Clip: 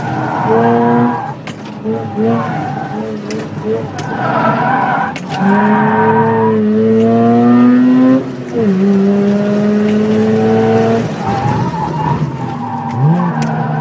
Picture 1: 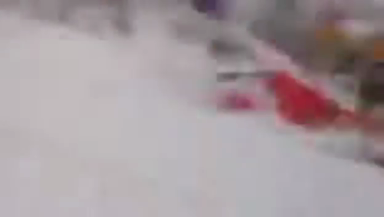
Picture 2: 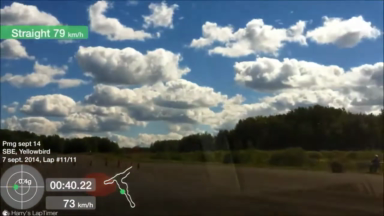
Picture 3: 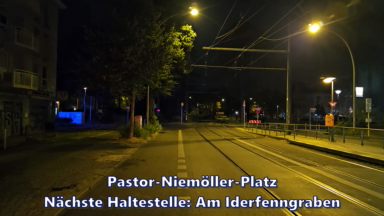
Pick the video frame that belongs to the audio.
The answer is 2